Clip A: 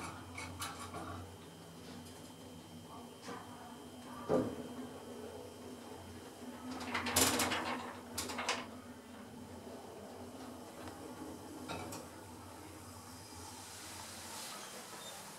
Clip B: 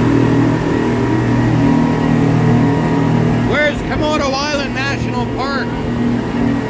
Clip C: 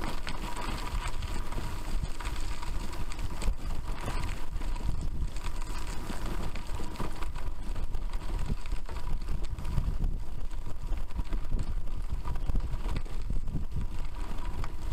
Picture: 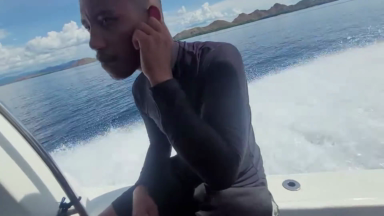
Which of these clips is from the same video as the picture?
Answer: B